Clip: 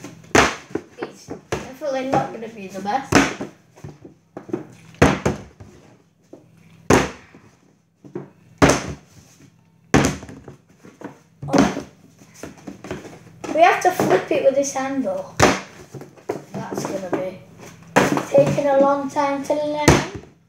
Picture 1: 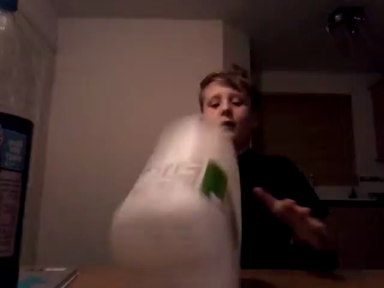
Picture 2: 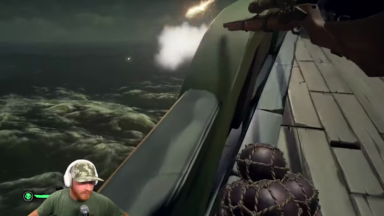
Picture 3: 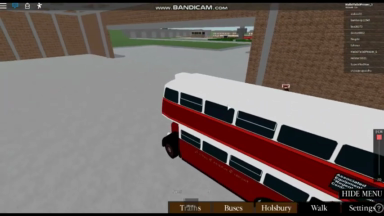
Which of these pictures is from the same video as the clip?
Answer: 1